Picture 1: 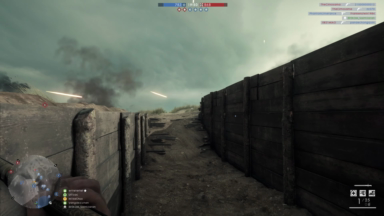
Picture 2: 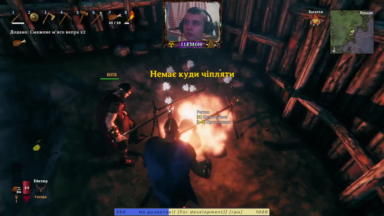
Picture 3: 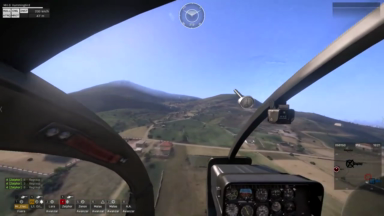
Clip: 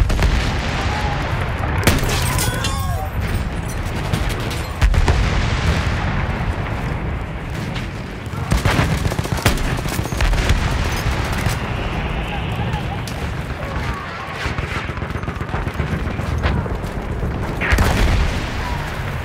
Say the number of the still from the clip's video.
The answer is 1